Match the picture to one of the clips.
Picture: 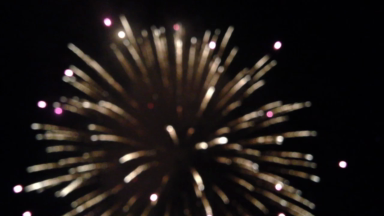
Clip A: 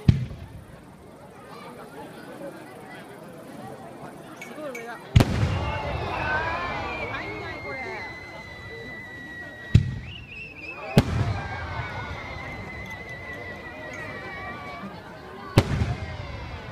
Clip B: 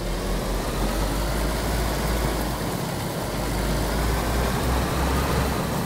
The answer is A